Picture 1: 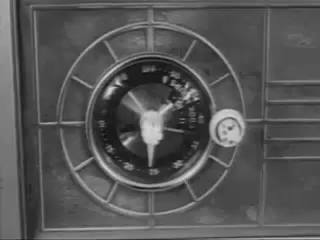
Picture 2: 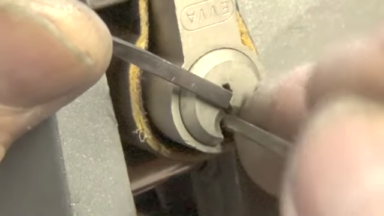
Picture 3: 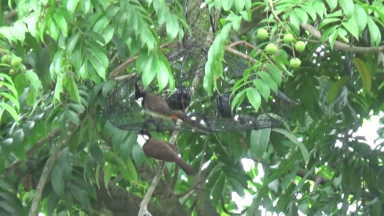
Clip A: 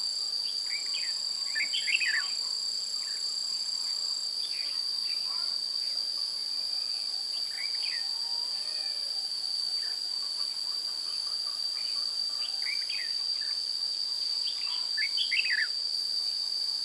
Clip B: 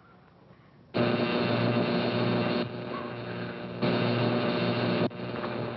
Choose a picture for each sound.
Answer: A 3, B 1